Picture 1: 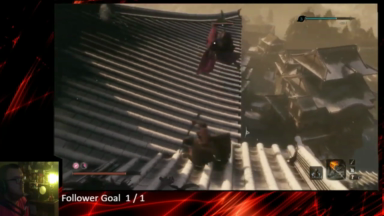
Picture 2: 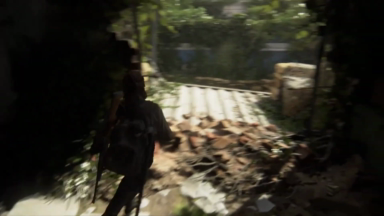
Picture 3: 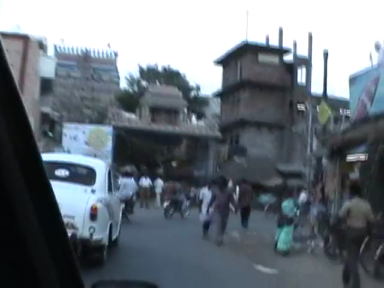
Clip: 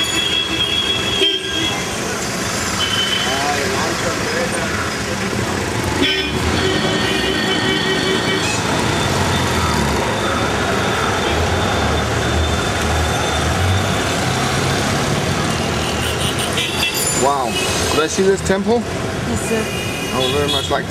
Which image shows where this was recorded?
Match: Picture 3